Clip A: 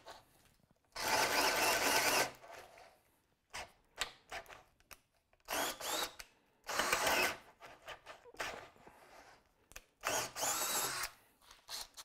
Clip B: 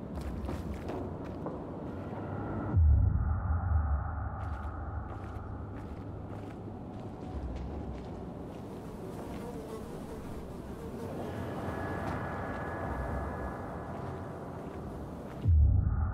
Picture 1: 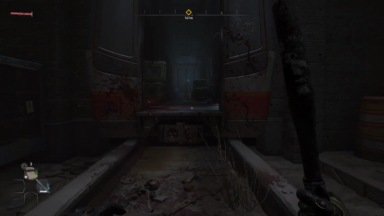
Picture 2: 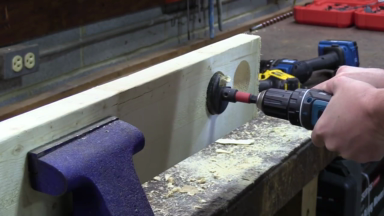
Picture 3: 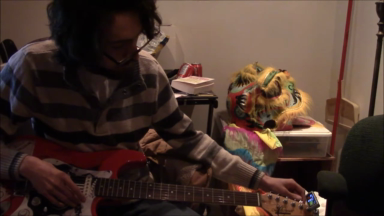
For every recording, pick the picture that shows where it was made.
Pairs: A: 2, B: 1